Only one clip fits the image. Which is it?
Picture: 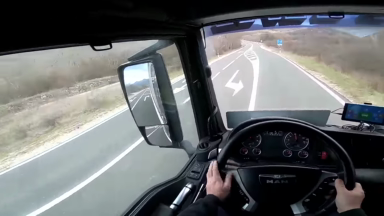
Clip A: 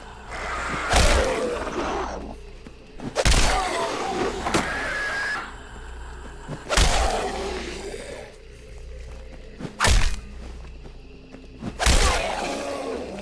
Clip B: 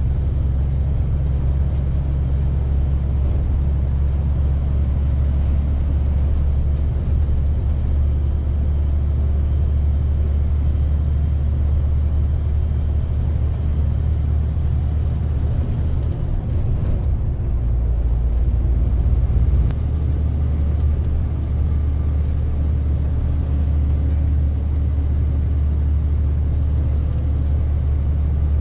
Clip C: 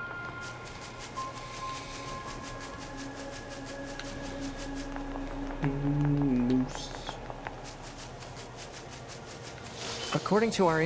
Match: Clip B